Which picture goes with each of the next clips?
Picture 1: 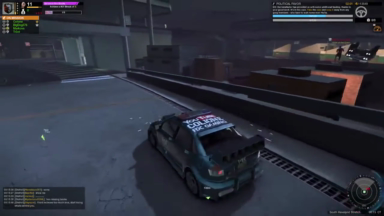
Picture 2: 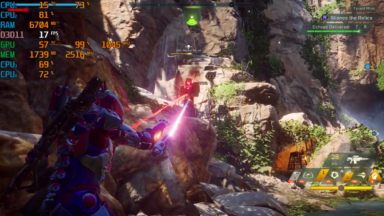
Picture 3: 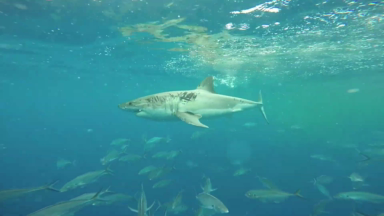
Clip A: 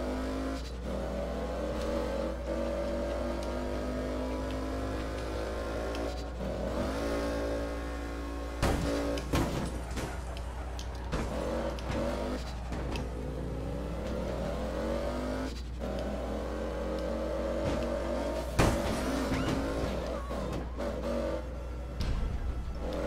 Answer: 1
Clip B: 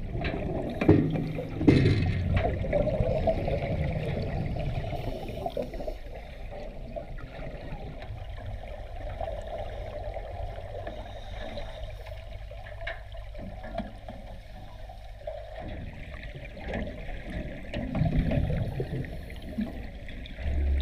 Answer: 3